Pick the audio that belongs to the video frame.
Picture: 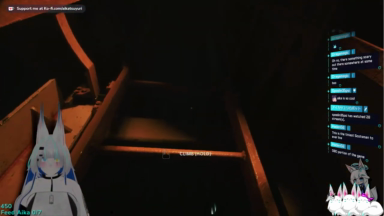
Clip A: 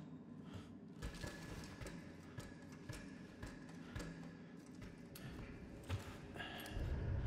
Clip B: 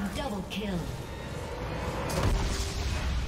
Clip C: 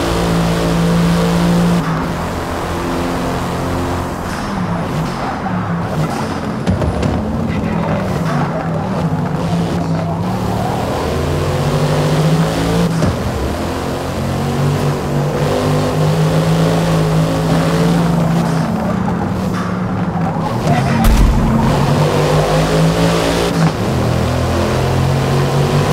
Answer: A